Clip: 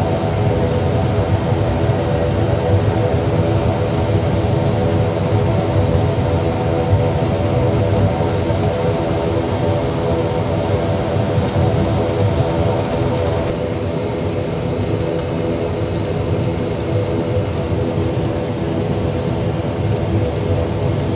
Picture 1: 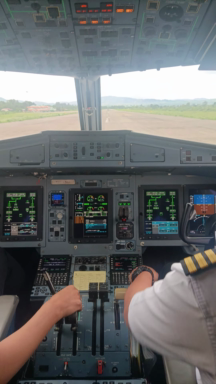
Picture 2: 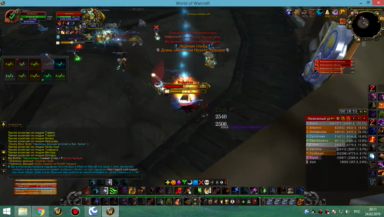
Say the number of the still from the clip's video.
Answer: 1